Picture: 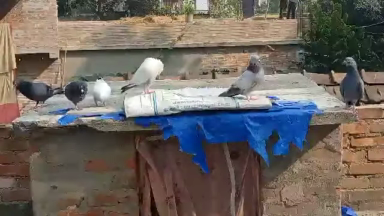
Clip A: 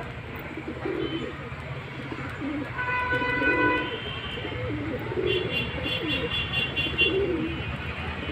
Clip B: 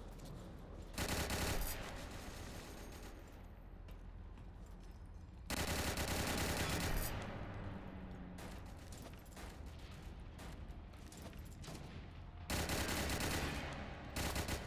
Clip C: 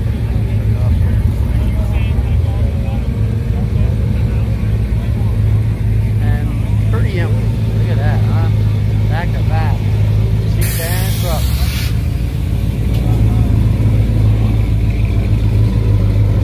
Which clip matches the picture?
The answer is A